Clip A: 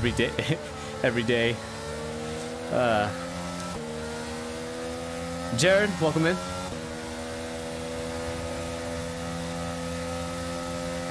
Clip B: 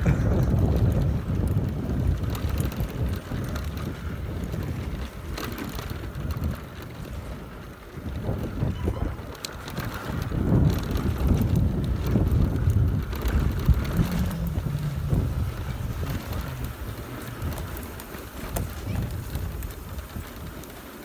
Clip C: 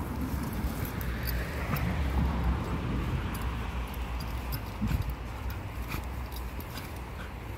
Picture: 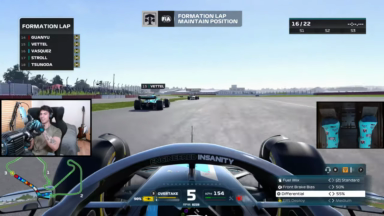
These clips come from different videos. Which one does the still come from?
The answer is A